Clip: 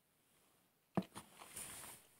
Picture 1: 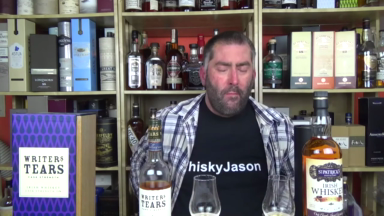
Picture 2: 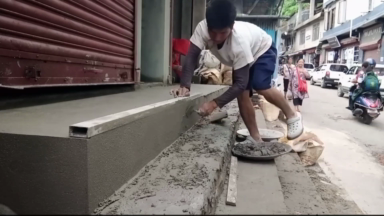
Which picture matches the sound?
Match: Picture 1